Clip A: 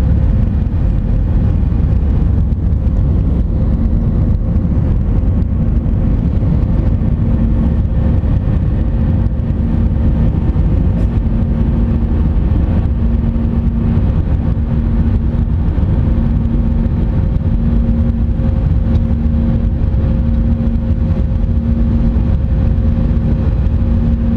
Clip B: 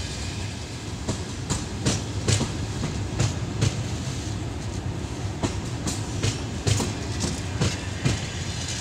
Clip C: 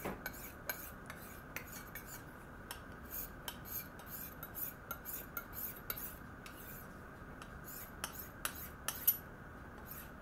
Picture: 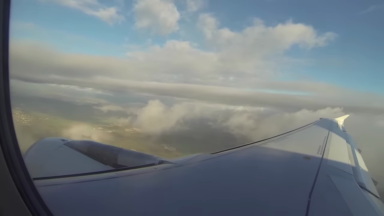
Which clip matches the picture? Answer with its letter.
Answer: A